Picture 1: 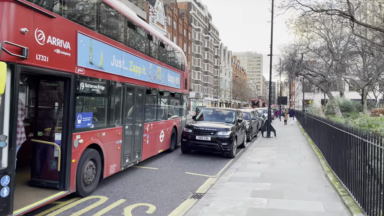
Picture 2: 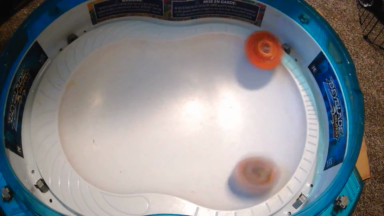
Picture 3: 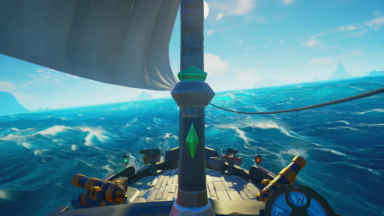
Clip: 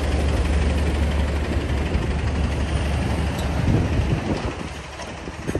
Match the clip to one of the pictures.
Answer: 1